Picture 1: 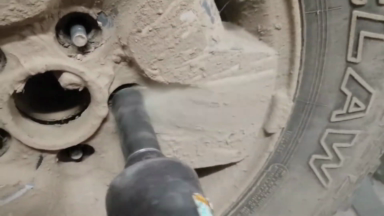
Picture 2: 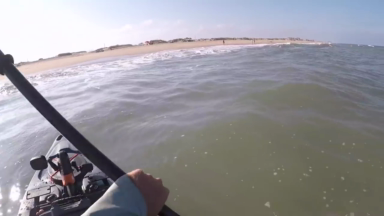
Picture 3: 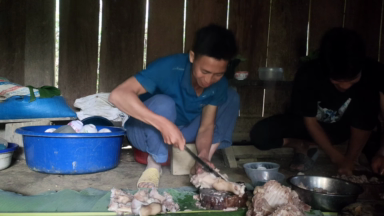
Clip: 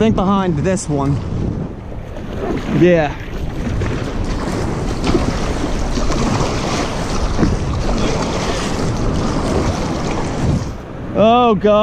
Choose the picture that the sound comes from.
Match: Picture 2